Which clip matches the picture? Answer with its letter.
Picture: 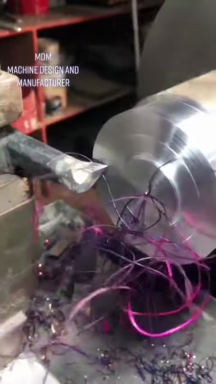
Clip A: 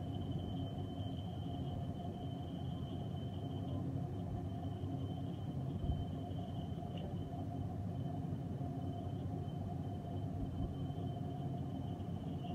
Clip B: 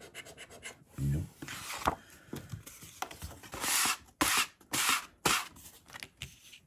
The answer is A